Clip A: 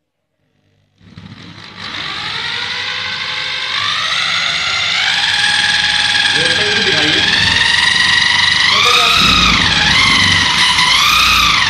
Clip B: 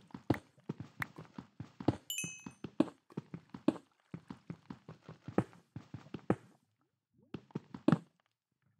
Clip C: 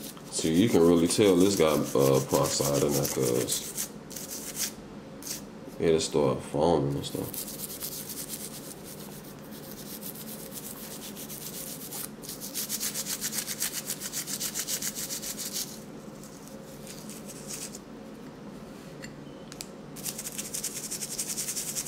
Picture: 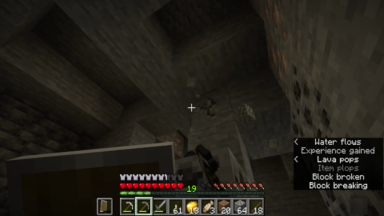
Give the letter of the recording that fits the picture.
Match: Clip B